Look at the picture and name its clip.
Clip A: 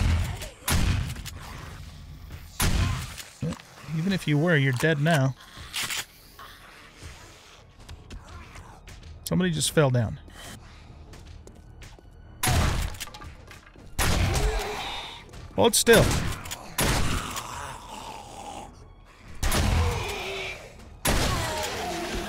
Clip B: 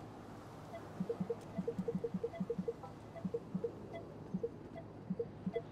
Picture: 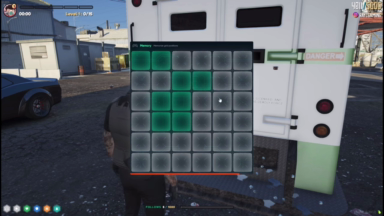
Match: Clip B